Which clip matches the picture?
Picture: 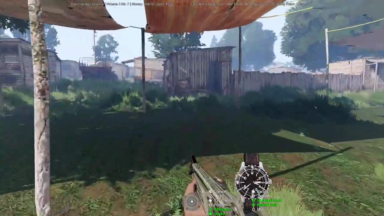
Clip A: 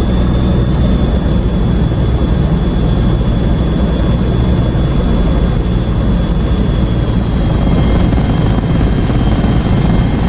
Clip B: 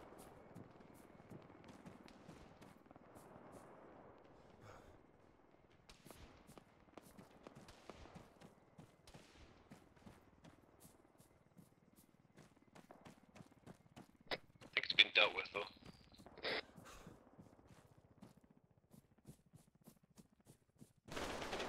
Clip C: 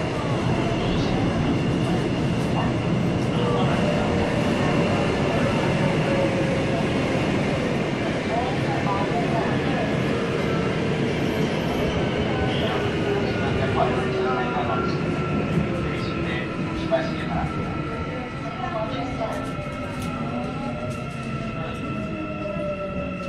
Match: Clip B